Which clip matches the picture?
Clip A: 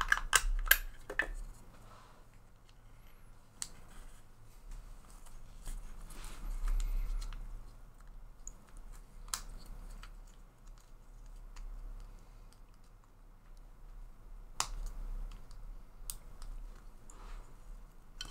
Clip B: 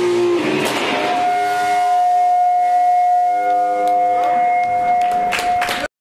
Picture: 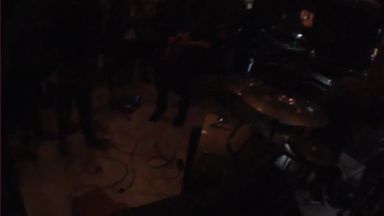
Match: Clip B